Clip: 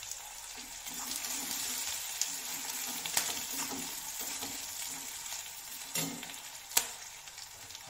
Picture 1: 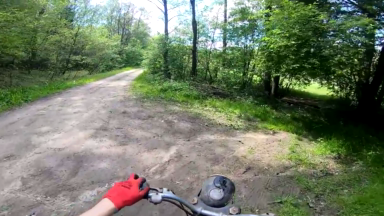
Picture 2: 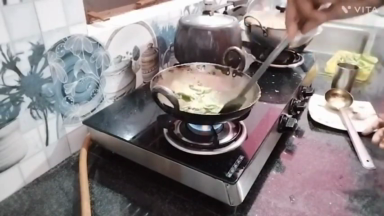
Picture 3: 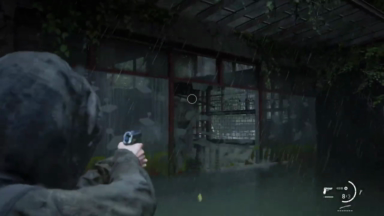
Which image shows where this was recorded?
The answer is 2